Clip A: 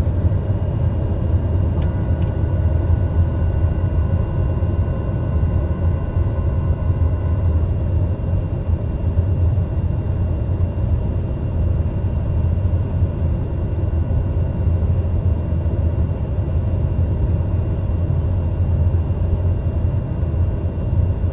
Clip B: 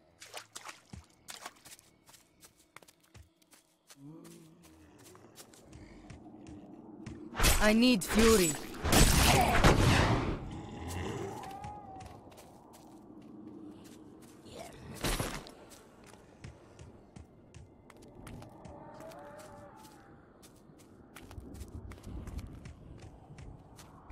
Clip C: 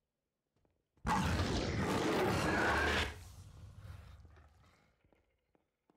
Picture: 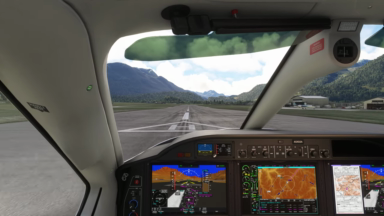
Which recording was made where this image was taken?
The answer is A